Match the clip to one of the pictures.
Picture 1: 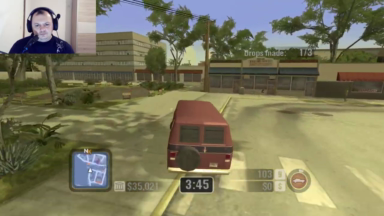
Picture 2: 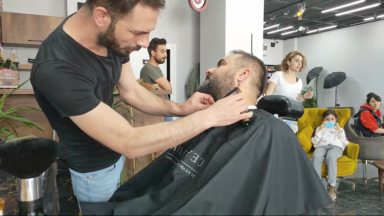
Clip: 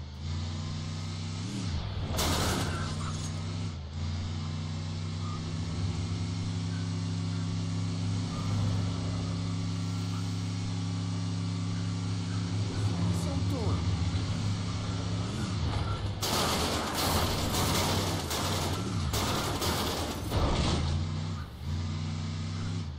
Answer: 1